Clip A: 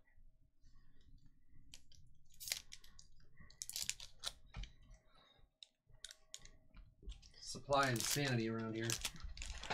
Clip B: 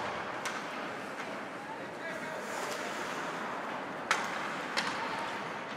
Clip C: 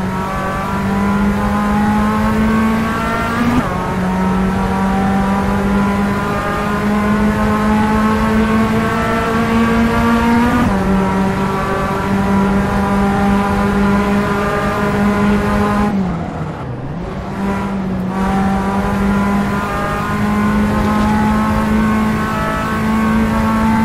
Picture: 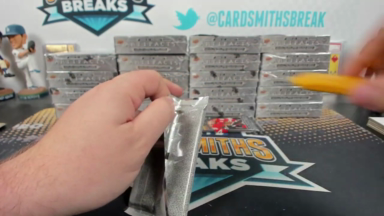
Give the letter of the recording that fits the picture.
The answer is A